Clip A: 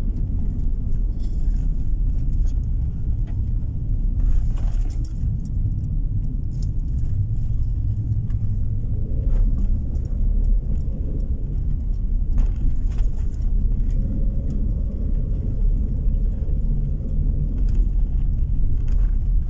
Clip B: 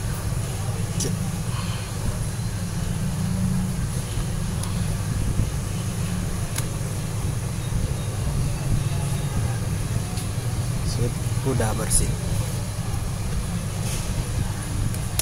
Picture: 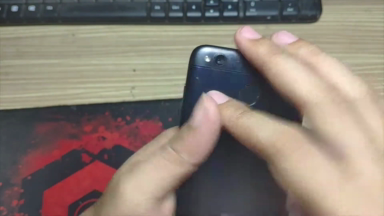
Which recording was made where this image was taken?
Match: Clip B